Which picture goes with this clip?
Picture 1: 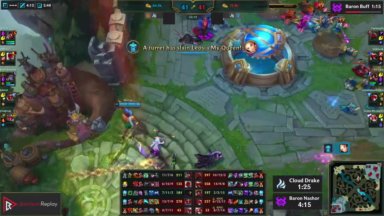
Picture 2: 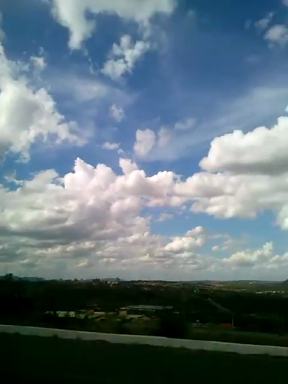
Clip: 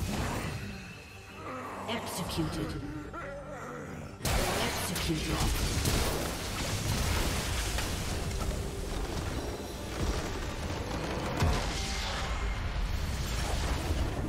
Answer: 1